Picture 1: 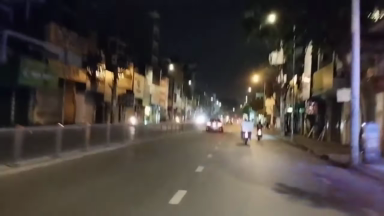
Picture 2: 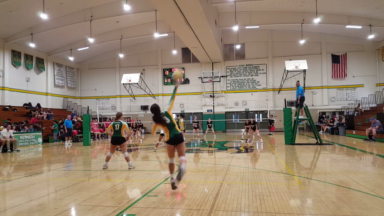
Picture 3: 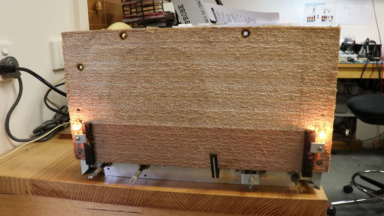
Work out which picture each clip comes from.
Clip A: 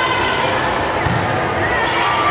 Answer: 2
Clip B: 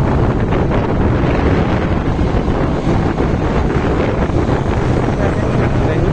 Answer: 1